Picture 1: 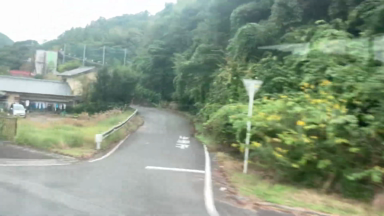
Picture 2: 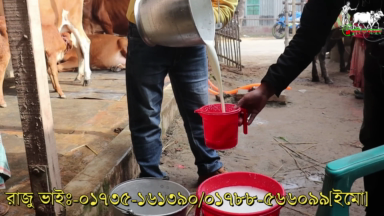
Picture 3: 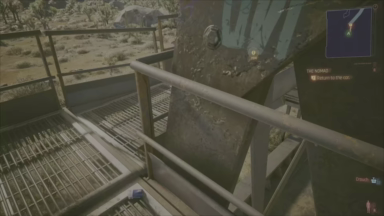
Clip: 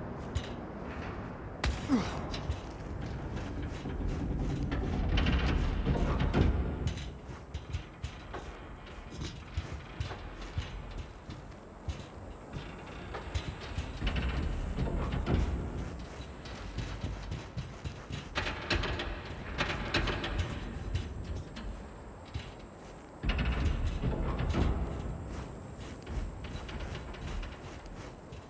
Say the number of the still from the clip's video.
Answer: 3